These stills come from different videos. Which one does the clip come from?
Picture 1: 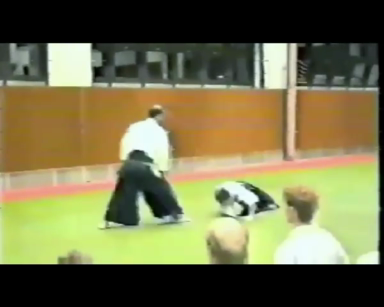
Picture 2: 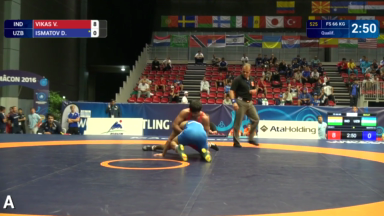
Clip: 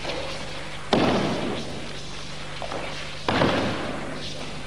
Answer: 1